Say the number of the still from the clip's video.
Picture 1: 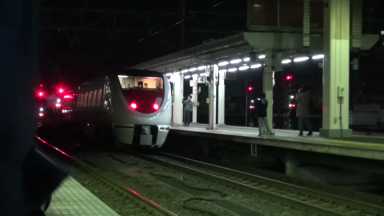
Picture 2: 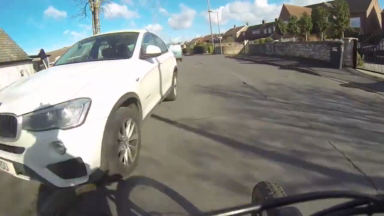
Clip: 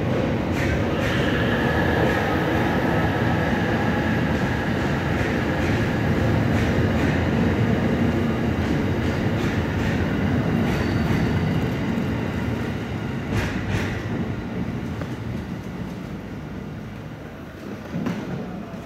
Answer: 1